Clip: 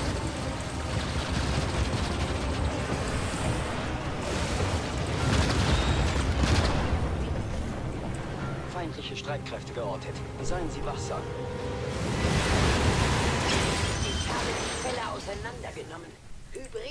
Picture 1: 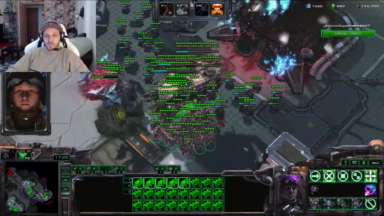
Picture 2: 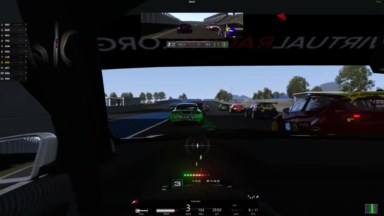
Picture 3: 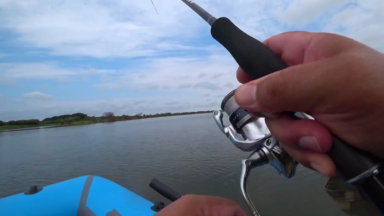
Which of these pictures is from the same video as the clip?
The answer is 1